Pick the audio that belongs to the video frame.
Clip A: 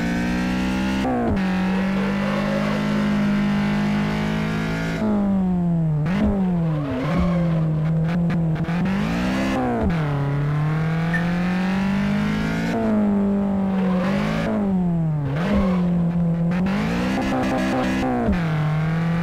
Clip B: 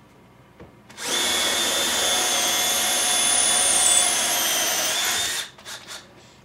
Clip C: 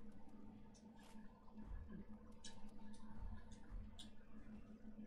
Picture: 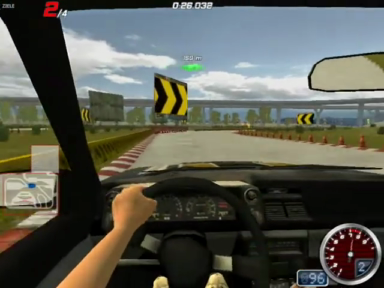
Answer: A